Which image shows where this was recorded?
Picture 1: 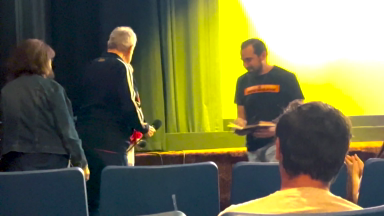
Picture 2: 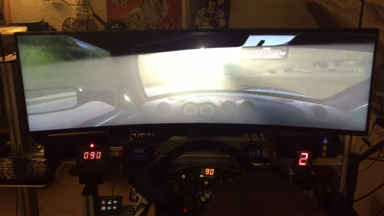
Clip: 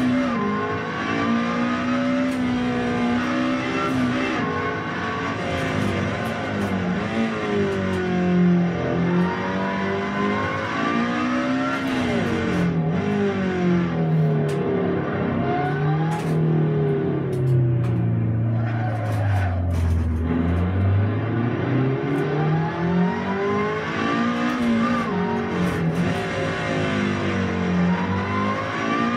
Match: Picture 2